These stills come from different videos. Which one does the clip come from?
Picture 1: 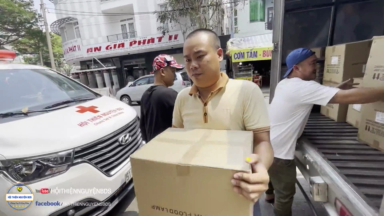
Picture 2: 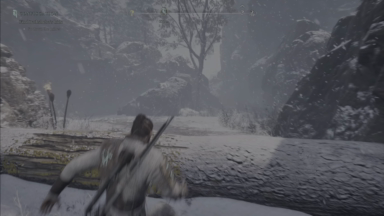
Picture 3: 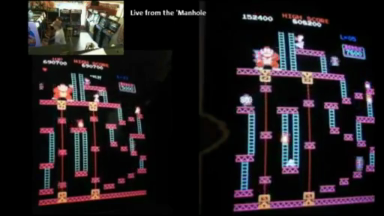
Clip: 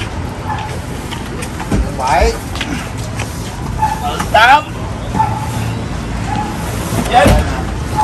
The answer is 1